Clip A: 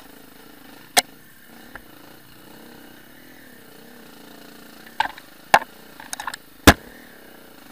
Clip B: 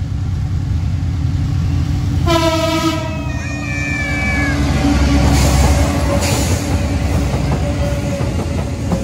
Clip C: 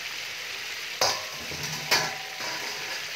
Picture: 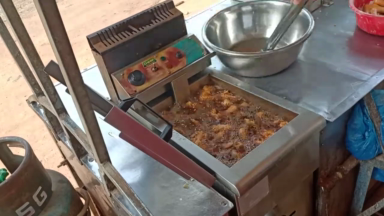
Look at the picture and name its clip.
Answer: C